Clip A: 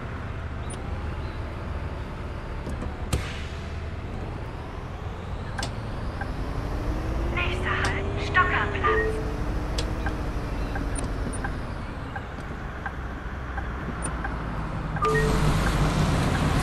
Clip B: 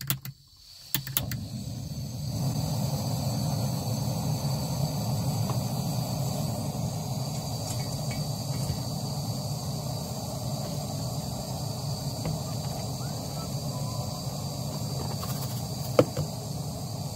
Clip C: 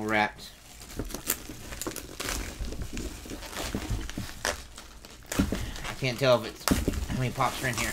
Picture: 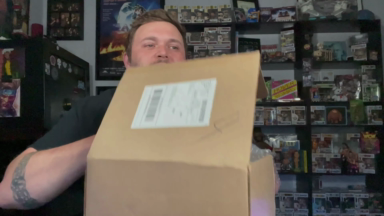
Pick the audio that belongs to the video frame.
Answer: C